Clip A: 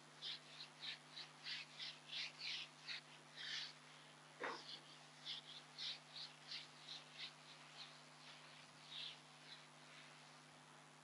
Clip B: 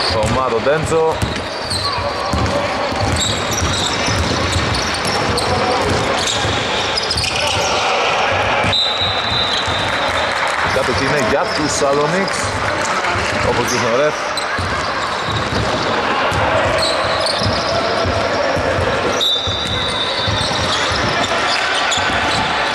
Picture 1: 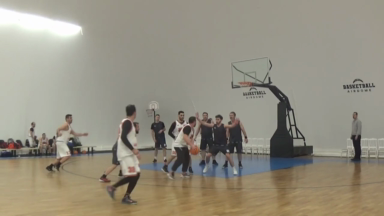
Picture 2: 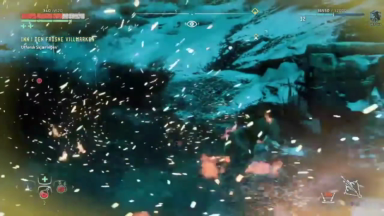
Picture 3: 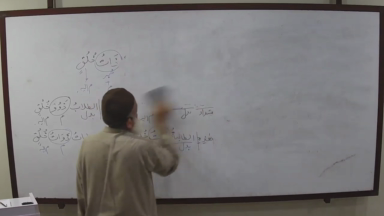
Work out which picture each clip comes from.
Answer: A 3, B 1